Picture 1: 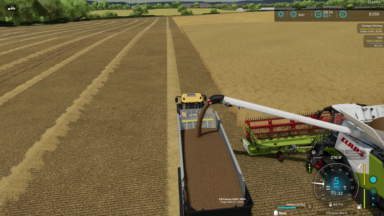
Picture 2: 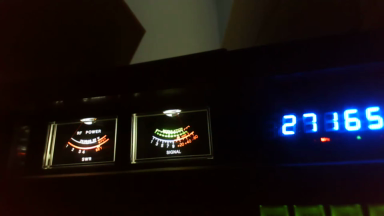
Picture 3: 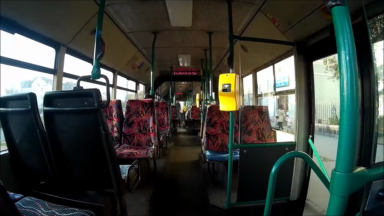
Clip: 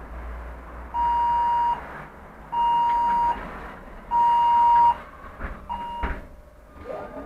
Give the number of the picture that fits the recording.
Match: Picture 3